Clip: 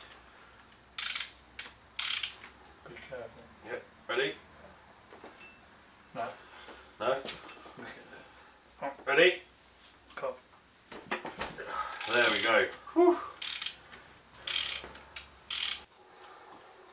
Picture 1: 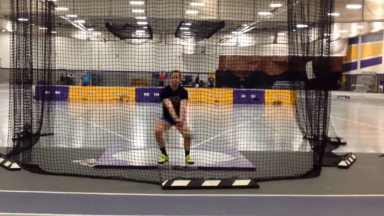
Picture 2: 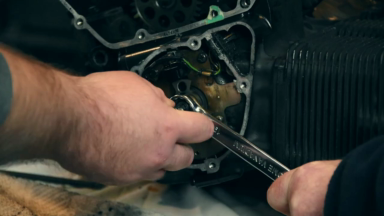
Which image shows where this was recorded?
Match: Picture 2